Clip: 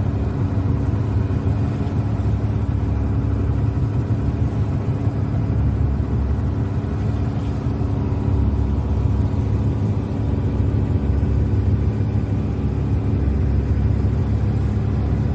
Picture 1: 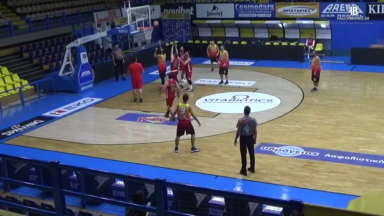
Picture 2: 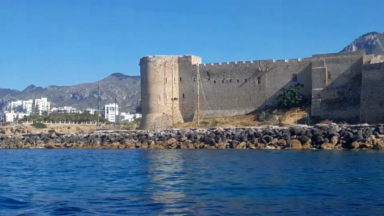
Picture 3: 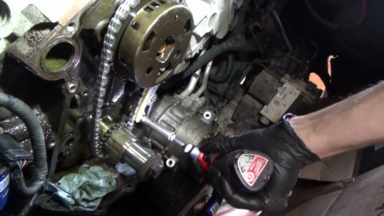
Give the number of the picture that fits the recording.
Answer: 2